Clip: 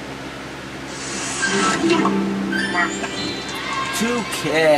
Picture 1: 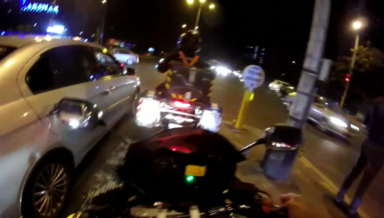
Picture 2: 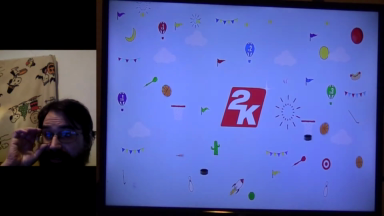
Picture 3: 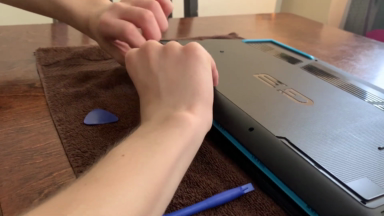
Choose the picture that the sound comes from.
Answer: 2